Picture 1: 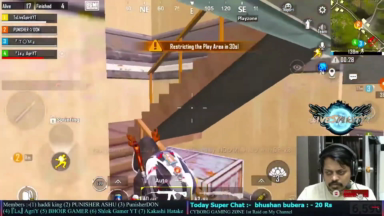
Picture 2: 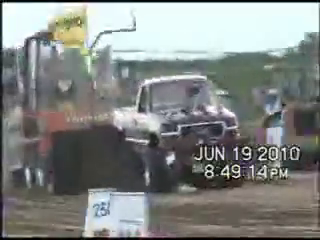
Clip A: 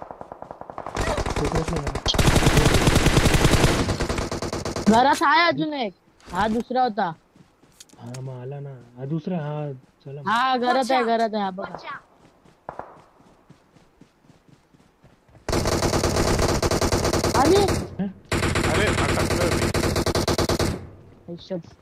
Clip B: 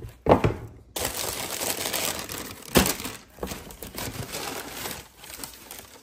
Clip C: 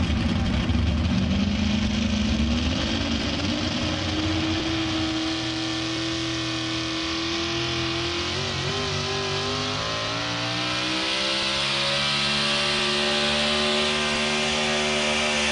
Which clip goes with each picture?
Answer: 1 A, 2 C